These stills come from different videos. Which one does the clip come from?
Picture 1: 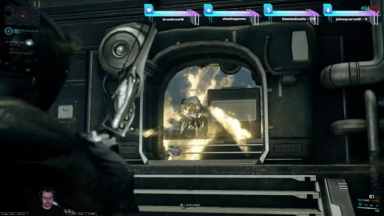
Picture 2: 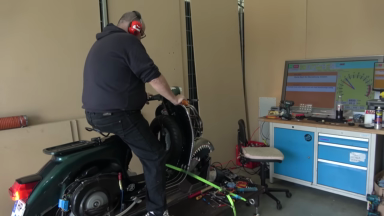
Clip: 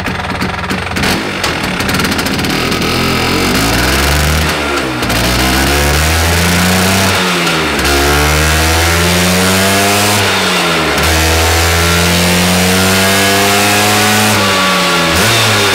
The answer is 2